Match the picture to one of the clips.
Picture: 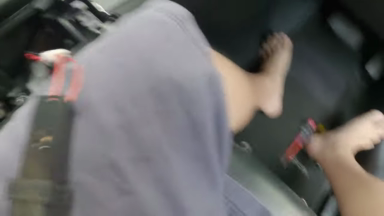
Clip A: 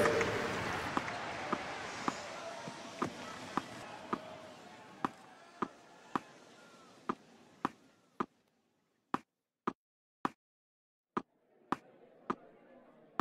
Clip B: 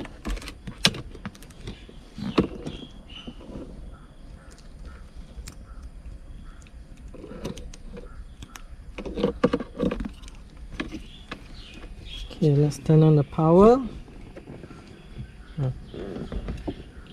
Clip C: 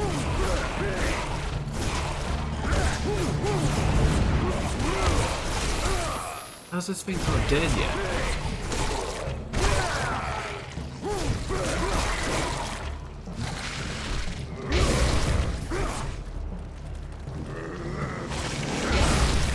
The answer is B